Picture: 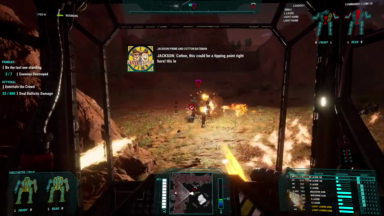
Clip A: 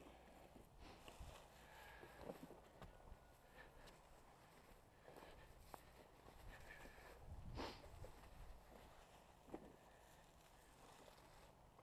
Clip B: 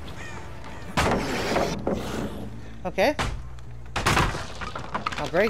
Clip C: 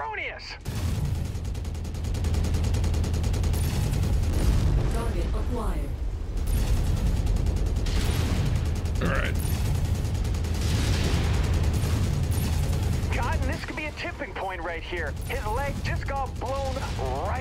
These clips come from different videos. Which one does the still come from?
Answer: C